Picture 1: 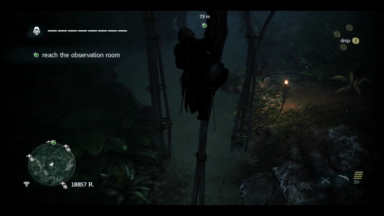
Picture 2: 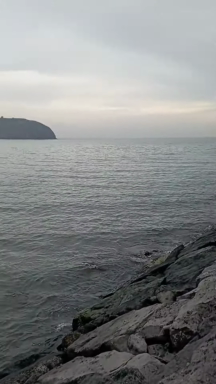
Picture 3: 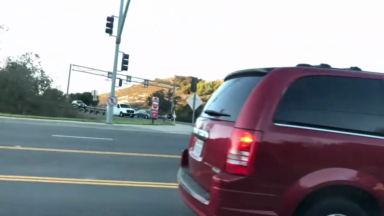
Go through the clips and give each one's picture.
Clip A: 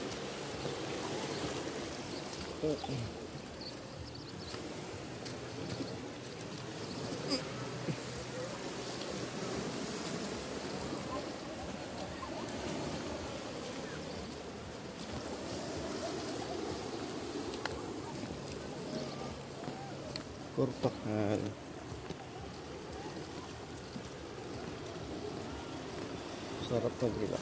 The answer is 2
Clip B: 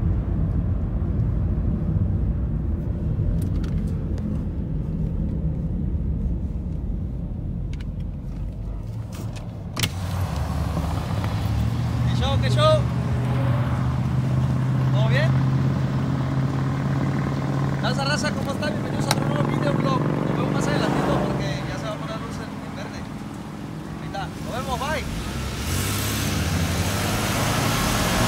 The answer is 3